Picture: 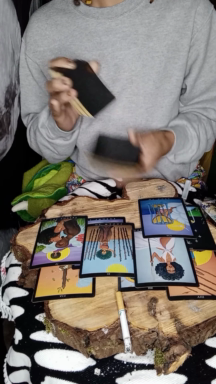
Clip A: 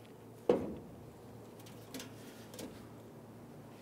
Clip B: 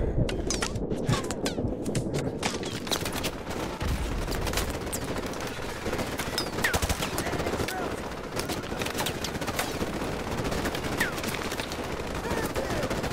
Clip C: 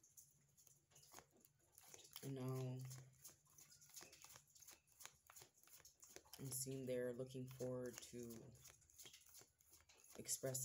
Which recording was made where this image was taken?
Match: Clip C